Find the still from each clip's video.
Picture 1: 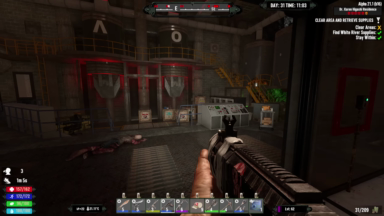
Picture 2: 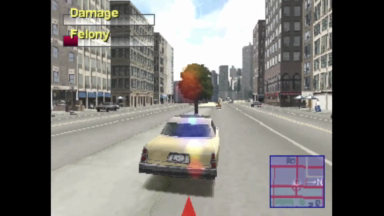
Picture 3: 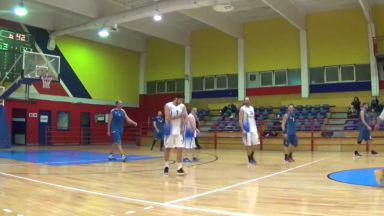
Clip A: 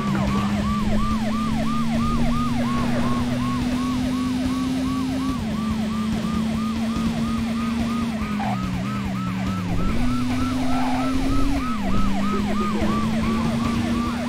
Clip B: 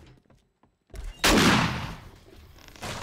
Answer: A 2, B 1